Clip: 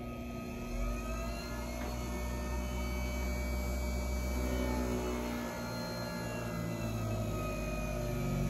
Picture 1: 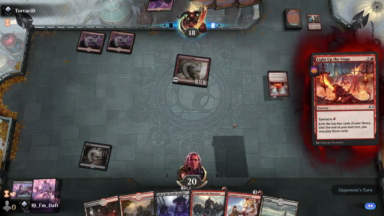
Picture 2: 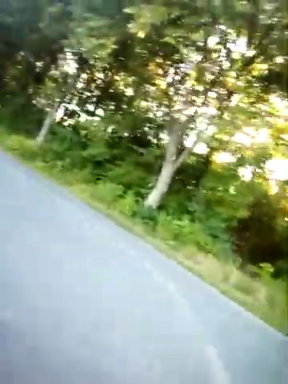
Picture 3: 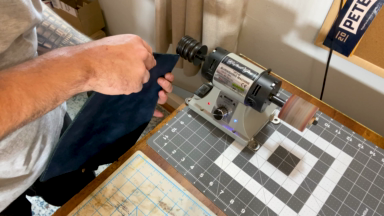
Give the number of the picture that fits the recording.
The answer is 3